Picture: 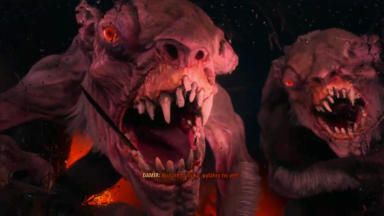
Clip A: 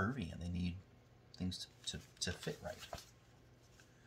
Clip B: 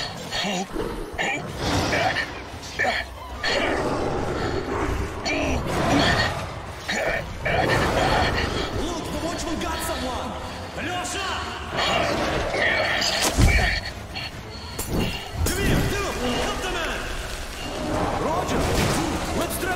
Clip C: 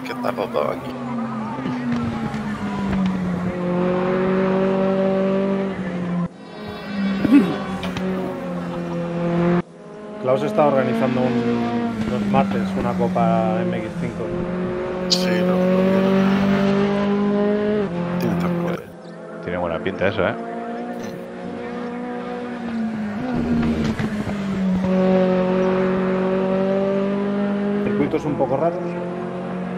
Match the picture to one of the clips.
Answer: B